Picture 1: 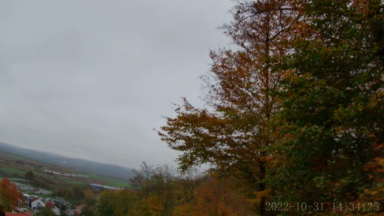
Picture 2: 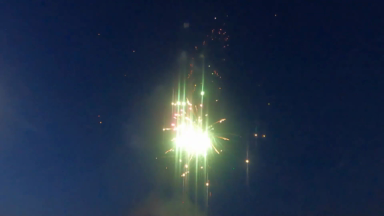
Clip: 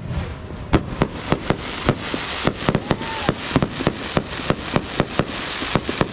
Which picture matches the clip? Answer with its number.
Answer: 2